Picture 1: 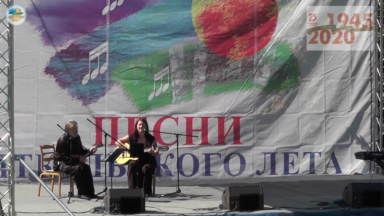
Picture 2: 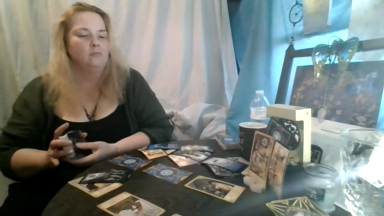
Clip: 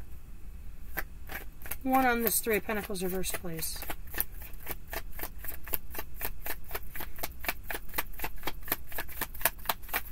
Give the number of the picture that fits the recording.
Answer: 2